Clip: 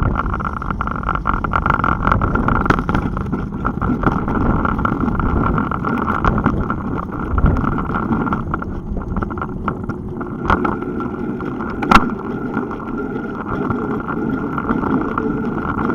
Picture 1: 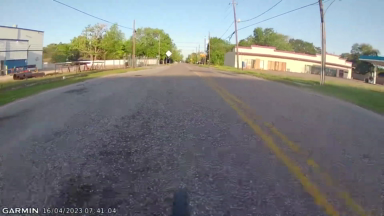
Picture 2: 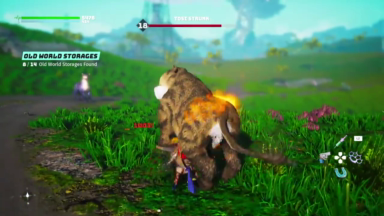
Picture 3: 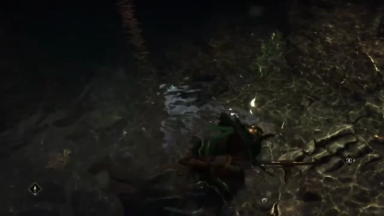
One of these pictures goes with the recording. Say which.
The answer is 1